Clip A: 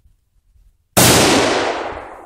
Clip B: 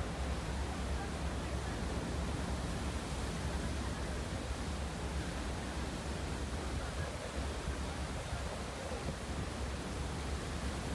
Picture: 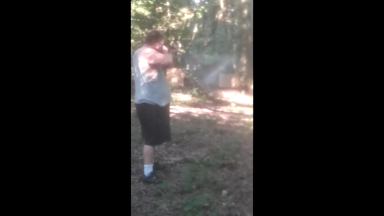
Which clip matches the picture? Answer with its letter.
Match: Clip A